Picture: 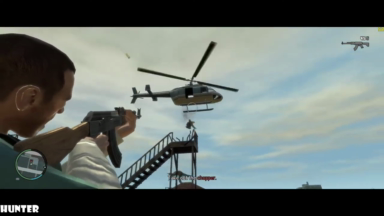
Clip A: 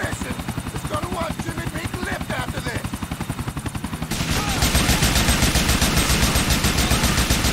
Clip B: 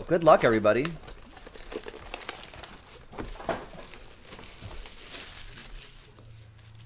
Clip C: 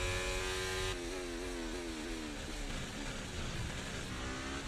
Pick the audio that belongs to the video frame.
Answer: A